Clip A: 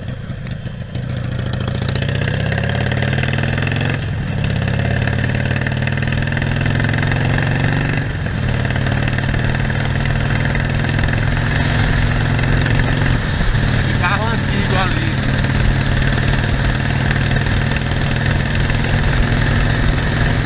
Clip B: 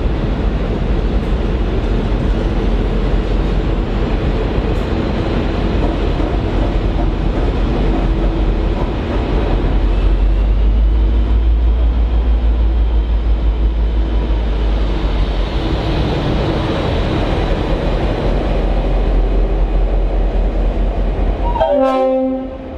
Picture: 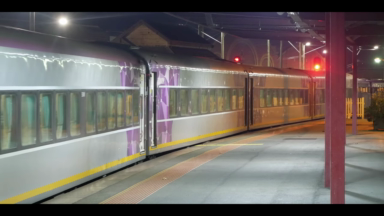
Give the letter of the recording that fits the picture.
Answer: B